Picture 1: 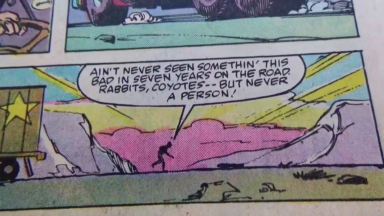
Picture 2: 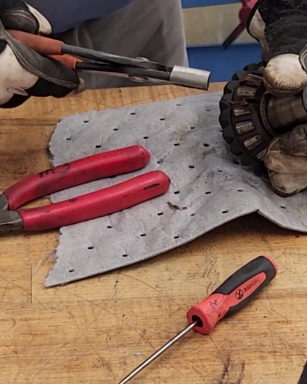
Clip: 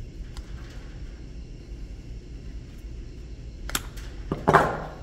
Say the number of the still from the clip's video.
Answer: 2